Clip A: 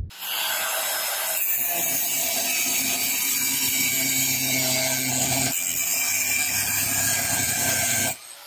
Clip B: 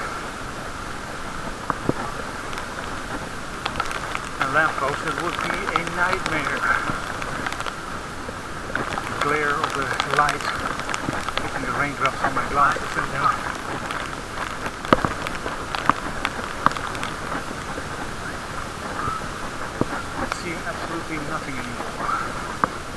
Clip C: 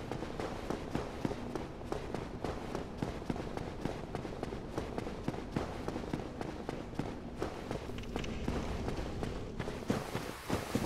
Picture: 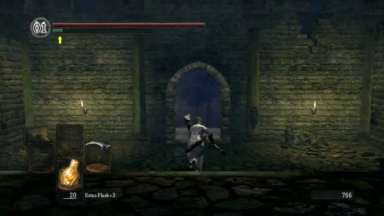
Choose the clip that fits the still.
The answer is C